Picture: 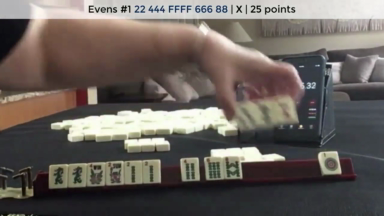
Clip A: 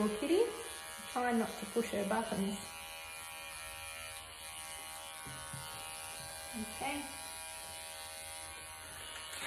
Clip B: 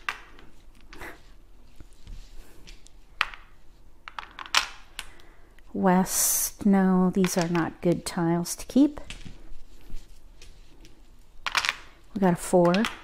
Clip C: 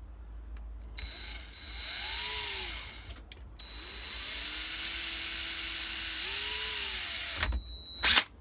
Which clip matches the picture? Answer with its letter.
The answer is B